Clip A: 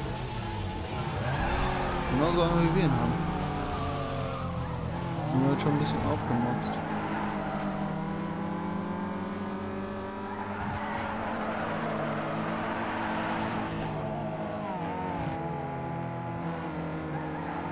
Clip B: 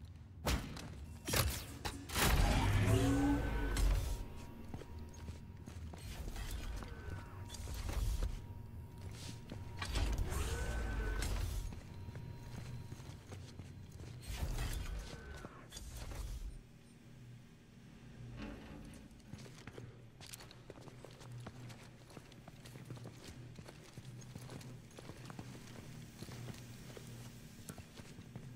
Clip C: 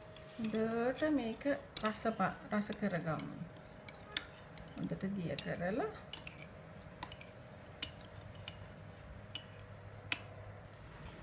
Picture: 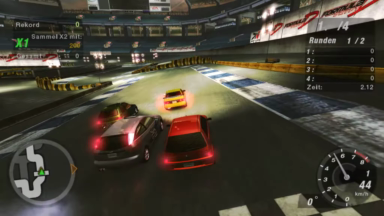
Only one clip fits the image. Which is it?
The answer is A